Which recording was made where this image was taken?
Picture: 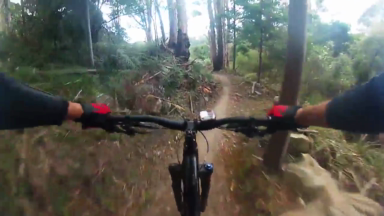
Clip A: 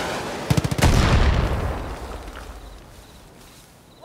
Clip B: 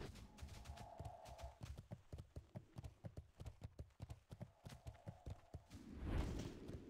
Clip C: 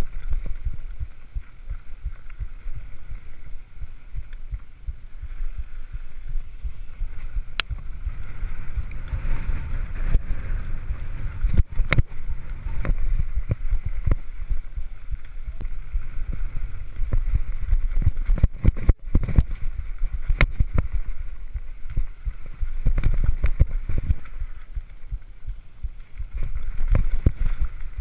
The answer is C